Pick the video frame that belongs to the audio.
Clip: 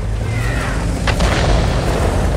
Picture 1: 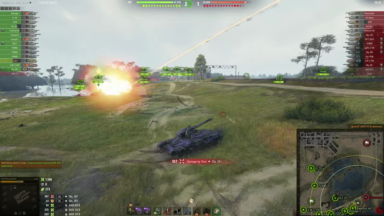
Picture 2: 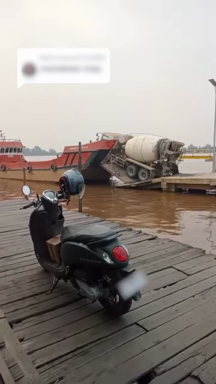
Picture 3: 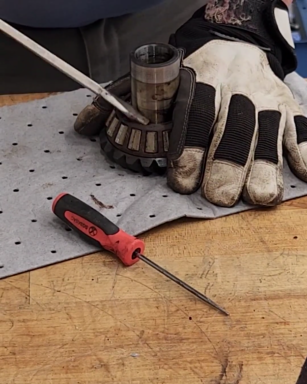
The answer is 1